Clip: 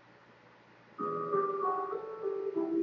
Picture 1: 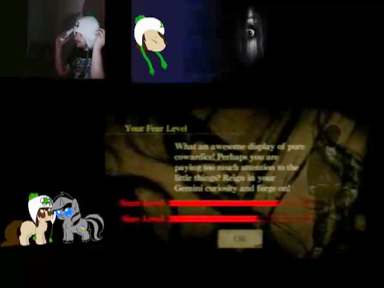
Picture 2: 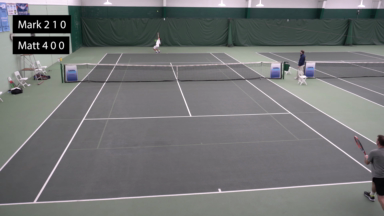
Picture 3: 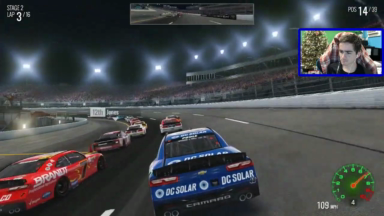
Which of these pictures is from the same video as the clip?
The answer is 1